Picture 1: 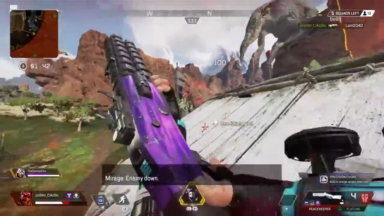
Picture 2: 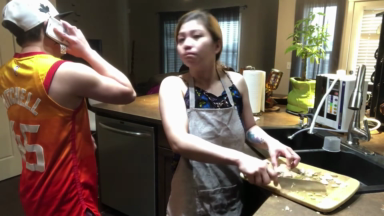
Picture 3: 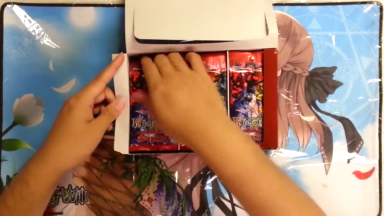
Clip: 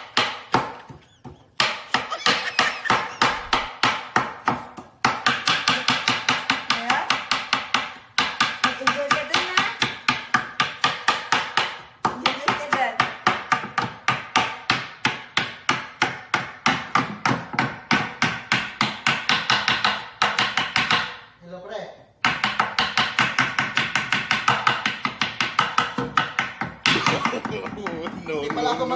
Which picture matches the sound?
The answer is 2